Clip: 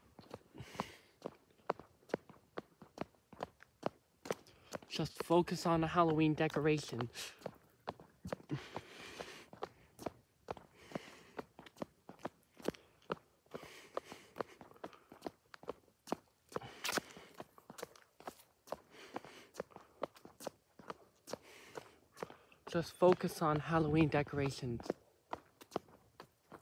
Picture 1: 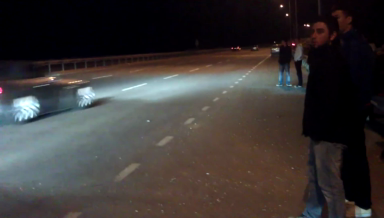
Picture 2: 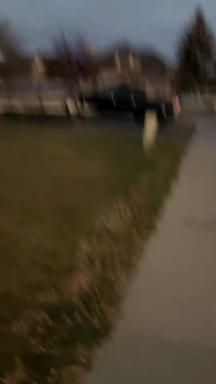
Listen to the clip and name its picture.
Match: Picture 2